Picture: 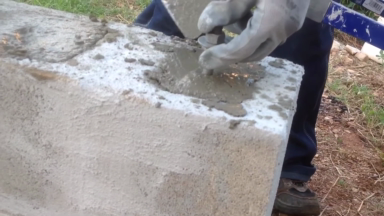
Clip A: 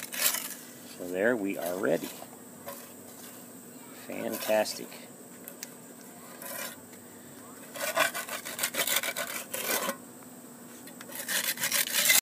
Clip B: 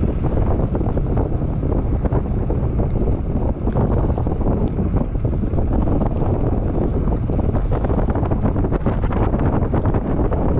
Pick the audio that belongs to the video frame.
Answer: A